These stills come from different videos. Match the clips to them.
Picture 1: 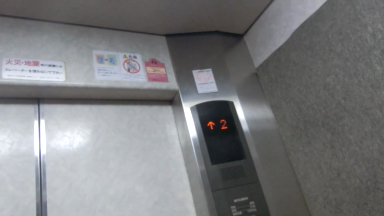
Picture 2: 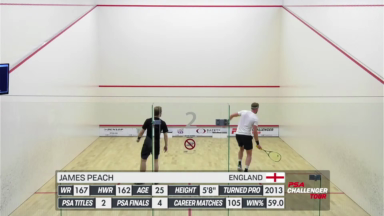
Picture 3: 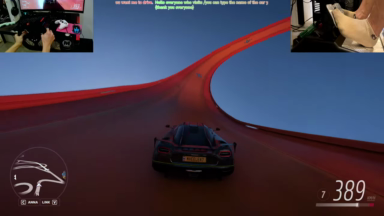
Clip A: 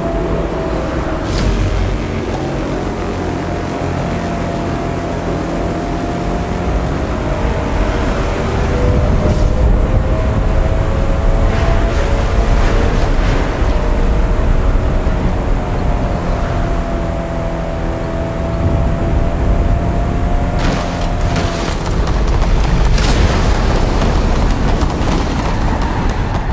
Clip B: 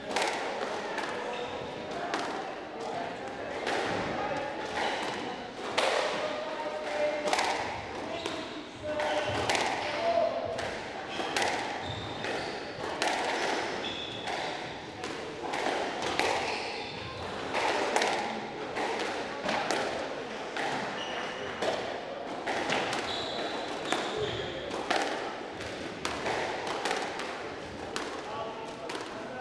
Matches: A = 3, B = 2